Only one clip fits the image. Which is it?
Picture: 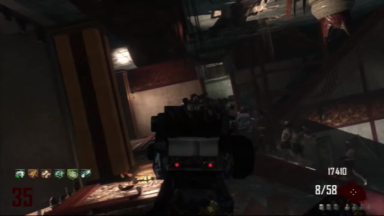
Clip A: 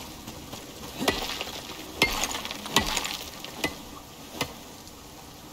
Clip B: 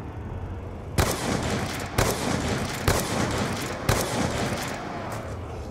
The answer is B